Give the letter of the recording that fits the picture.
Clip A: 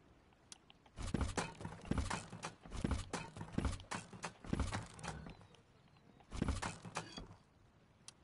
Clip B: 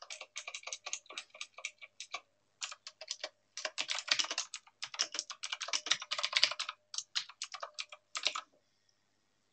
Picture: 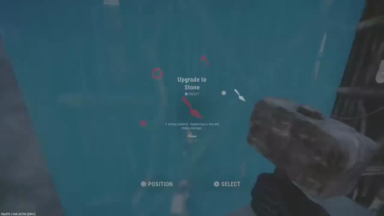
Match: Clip A